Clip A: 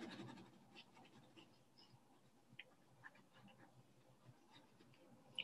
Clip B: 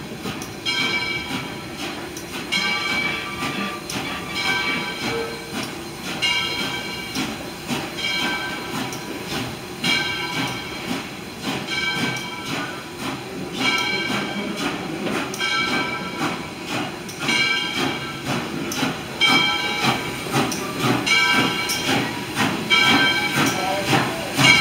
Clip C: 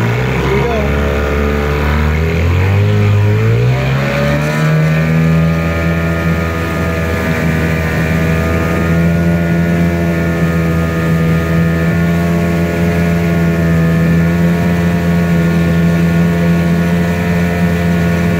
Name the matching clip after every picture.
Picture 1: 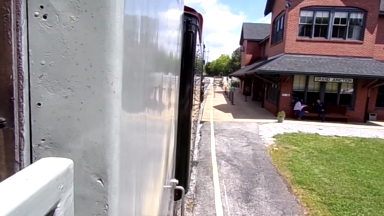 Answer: B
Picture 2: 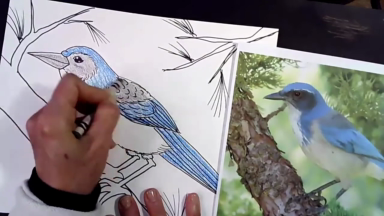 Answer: A